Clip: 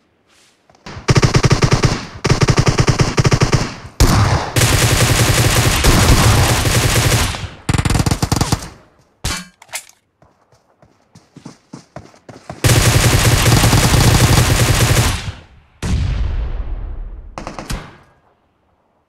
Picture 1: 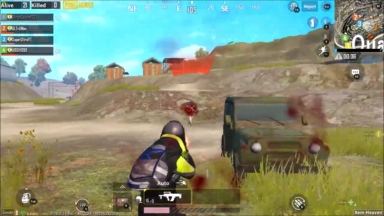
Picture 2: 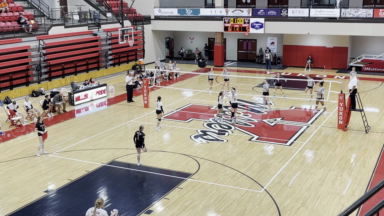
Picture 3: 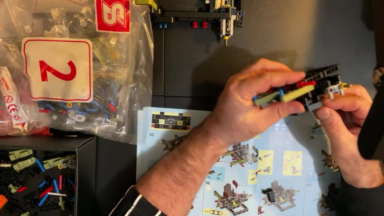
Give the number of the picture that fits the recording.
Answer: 1